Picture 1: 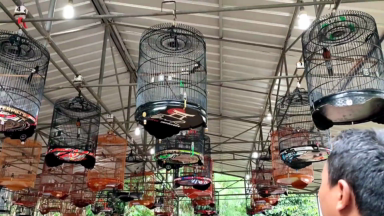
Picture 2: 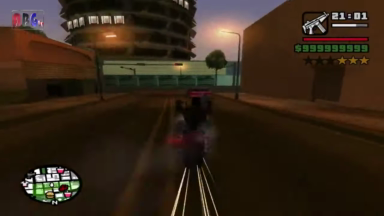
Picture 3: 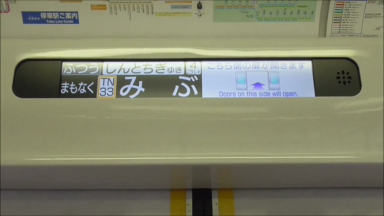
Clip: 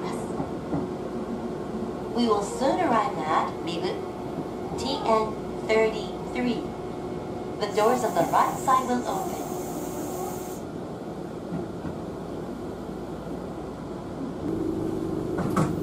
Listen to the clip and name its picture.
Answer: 3